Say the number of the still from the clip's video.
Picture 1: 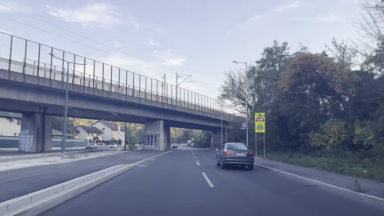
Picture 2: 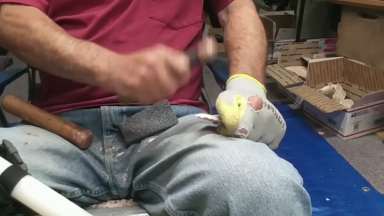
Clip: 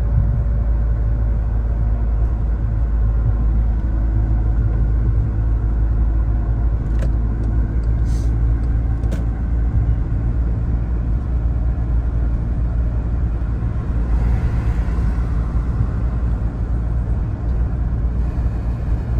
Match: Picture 1